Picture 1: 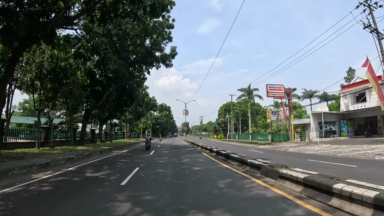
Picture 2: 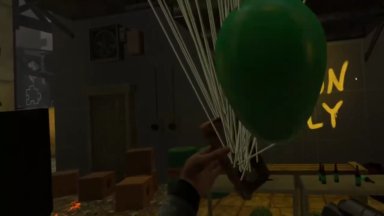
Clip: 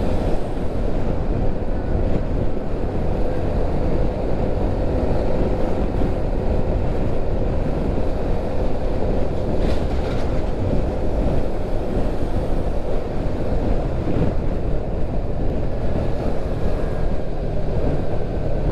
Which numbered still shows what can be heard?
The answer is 1